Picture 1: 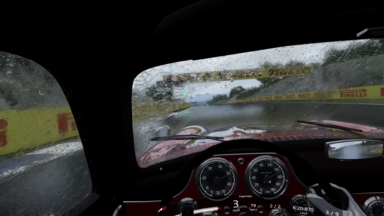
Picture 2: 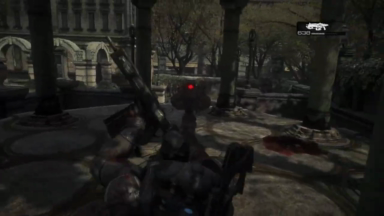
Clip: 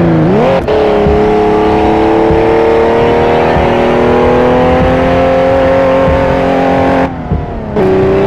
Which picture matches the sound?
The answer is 1